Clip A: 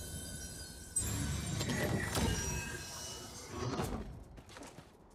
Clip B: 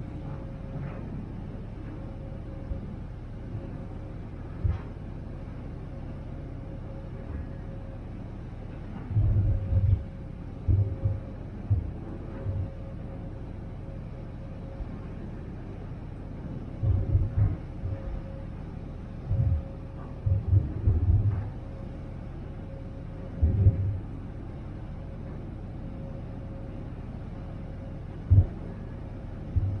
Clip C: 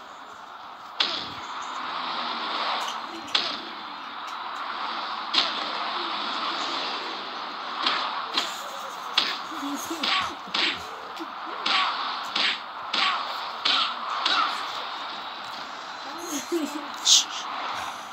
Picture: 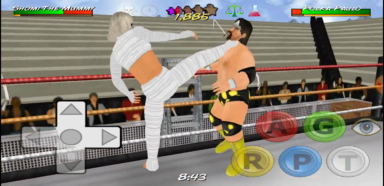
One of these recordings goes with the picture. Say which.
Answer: C